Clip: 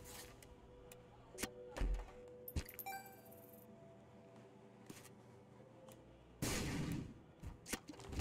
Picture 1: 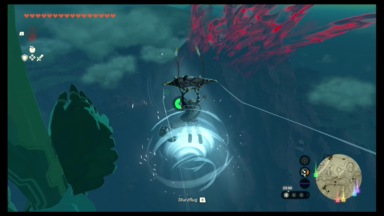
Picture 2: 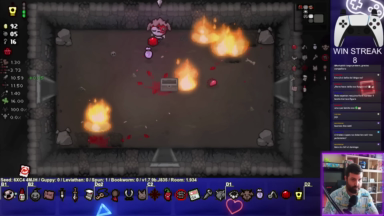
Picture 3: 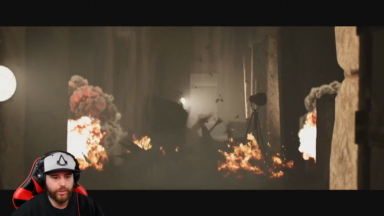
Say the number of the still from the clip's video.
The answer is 2